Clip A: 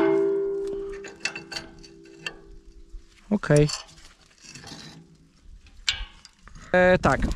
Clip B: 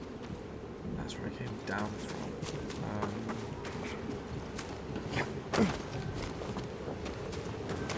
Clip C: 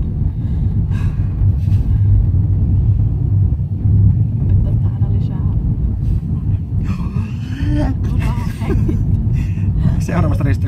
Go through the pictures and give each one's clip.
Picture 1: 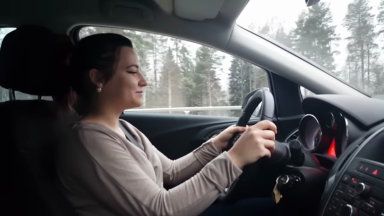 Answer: C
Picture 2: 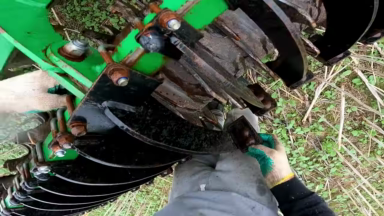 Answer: A